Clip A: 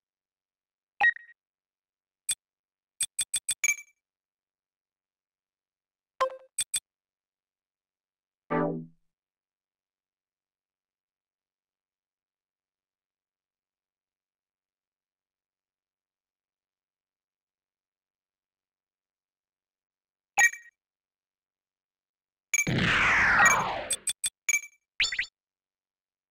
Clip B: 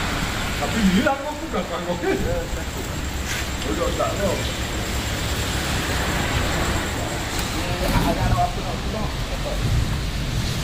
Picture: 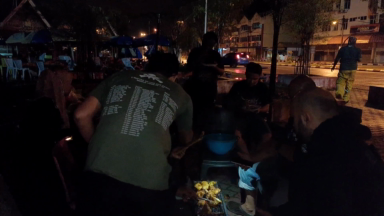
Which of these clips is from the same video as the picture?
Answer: B